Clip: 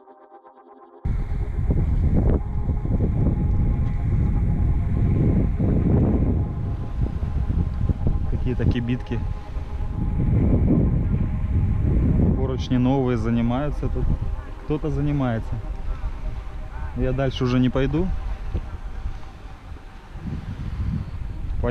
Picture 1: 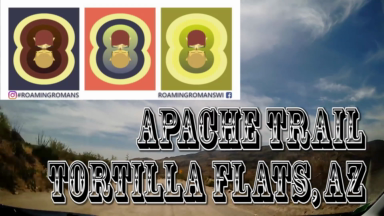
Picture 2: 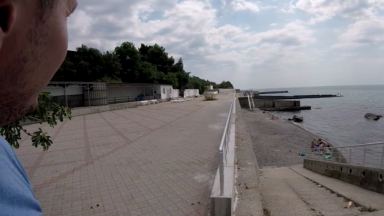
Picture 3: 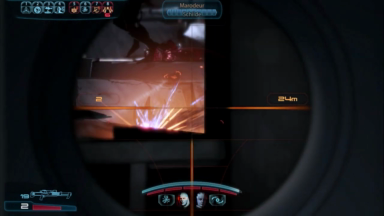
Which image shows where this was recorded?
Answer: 2